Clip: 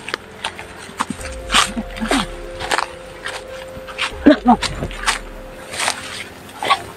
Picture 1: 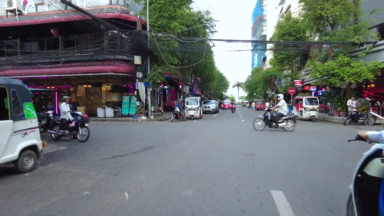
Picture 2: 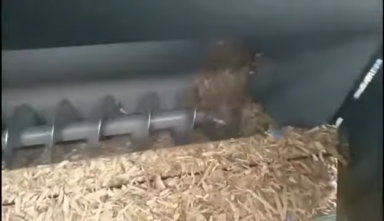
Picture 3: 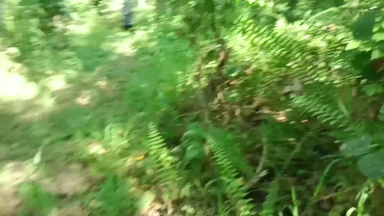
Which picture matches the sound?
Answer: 3